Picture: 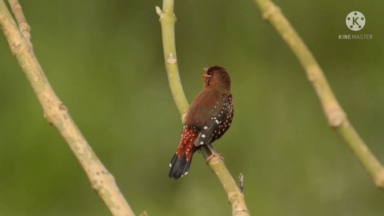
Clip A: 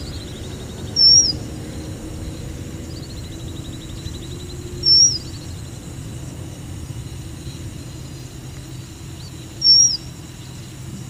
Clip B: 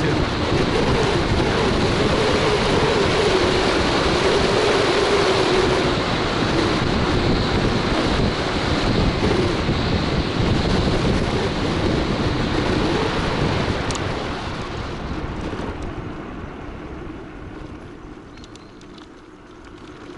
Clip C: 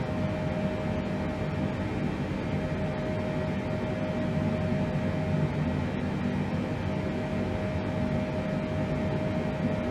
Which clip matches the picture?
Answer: A